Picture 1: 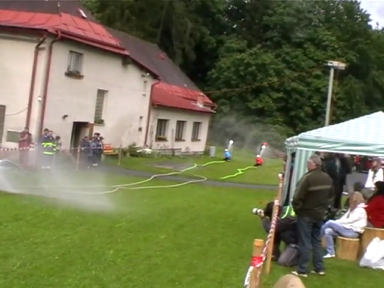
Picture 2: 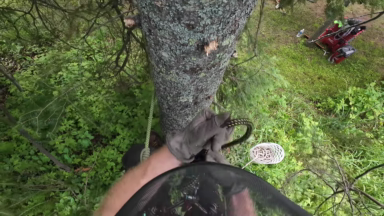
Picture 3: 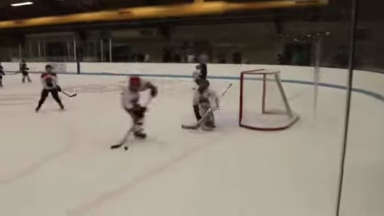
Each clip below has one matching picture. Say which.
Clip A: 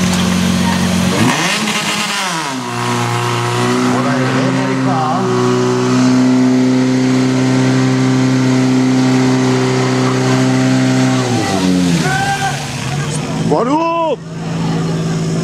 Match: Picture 1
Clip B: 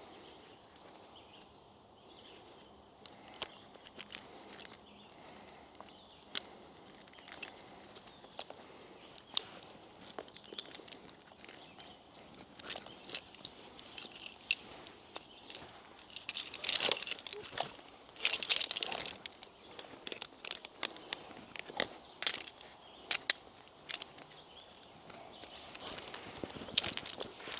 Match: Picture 2